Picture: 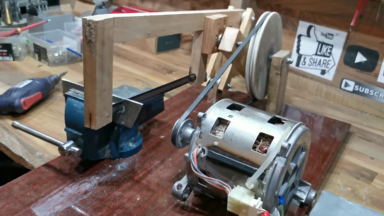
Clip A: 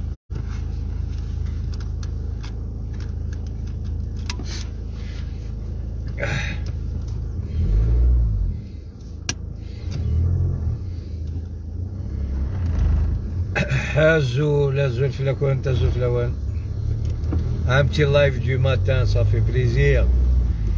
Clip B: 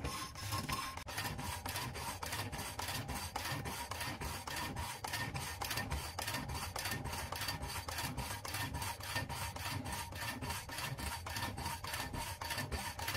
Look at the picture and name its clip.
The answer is B